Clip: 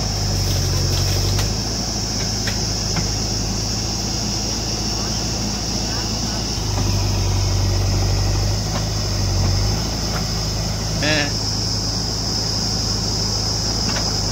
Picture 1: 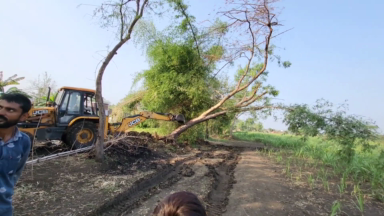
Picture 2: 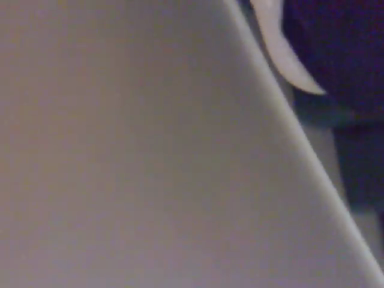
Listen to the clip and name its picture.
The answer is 1